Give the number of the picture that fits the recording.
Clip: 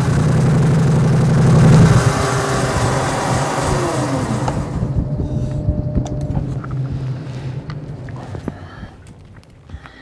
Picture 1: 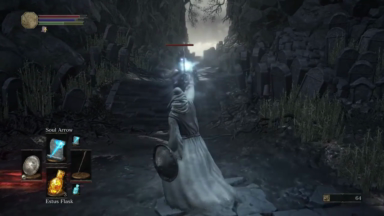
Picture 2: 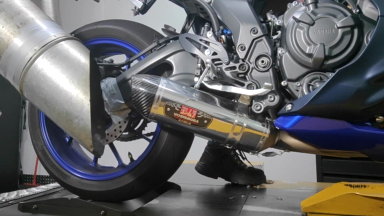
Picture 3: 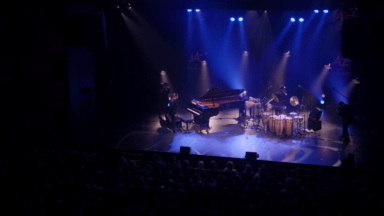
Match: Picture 2